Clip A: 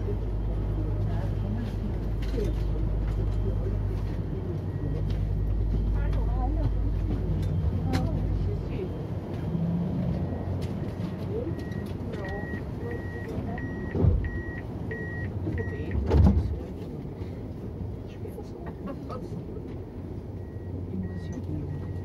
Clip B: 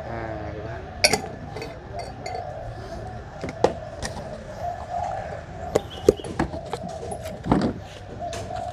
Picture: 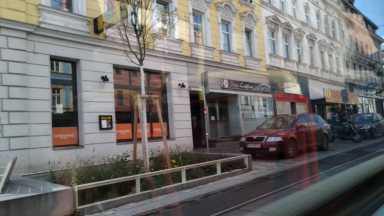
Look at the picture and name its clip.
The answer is A